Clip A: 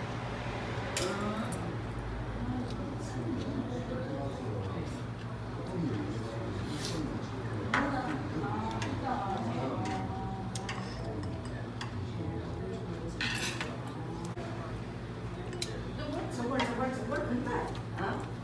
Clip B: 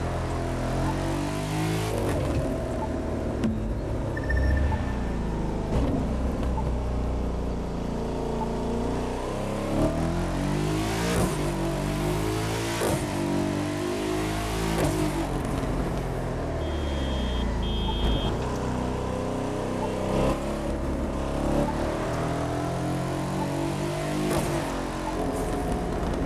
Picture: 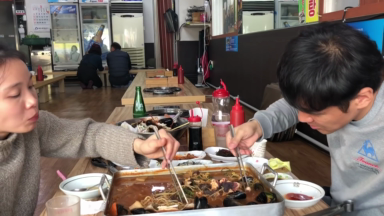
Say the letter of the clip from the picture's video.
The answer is A